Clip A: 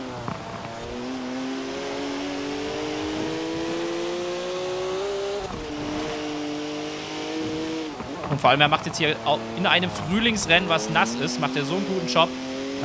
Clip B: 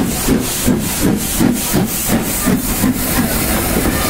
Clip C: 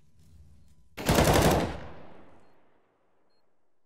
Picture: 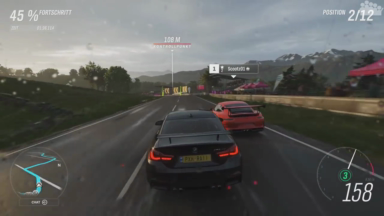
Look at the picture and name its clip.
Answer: A